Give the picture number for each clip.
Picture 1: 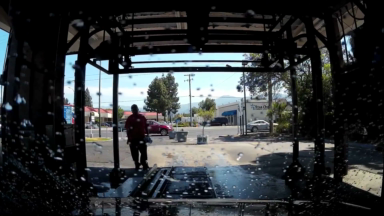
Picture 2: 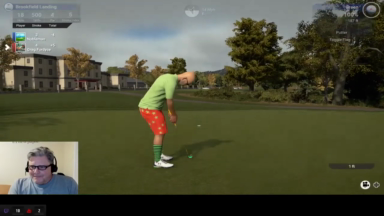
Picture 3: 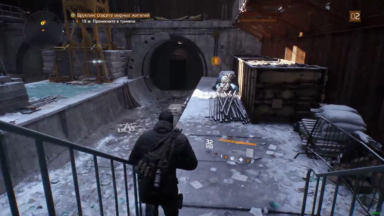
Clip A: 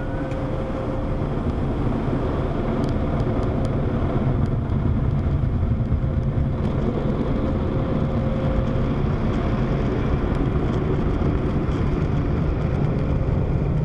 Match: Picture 1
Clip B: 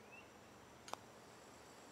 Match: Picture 2